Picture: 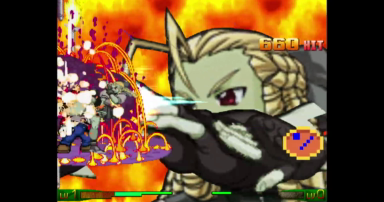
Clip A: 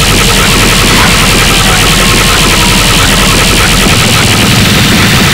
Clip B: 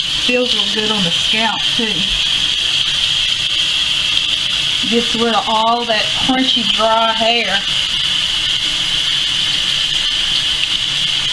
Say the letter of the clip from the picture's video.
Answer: A